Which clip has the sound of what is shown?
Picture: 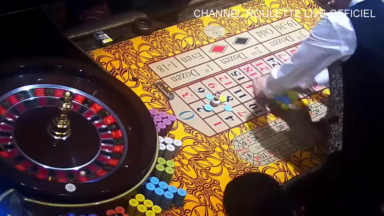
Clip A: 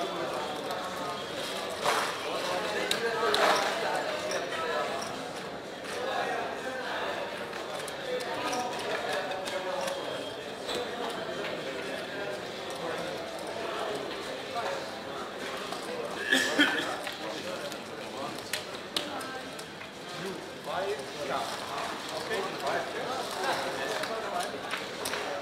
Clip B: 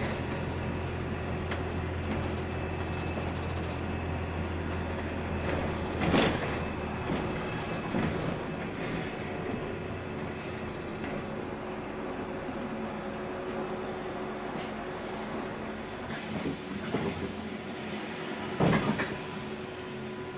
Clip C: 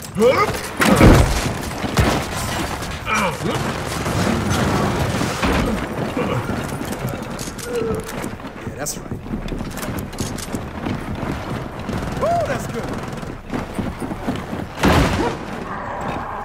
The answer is A